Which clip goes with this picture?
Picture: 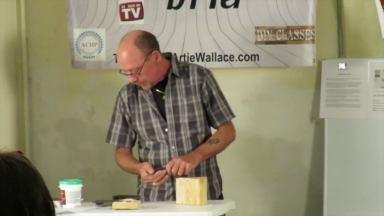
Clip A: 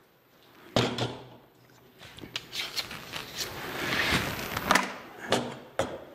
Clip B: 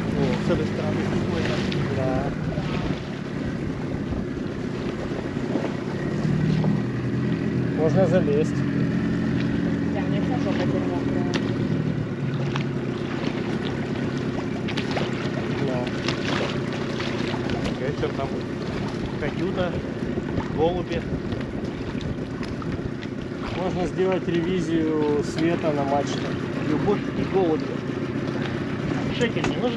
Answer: A